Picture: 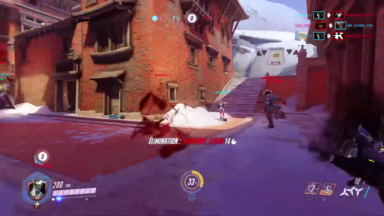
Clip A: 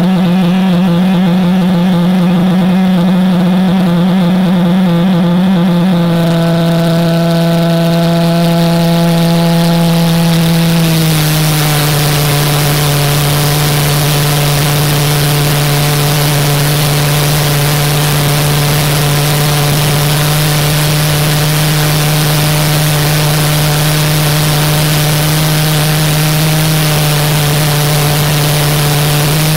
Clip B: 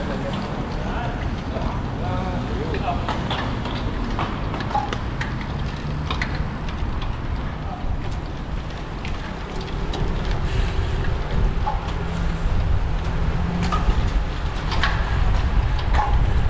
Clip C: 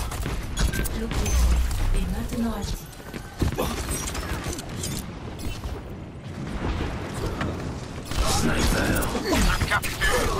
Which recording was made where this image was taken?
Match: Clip C